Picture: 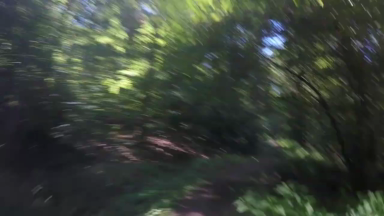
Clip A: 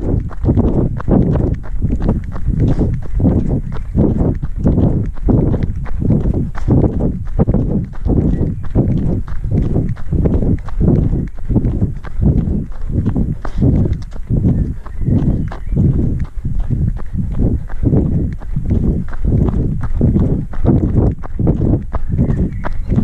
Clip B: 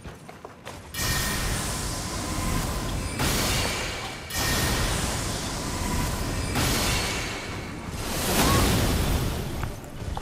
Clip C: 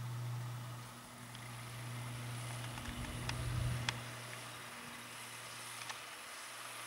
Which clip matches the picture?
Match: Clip A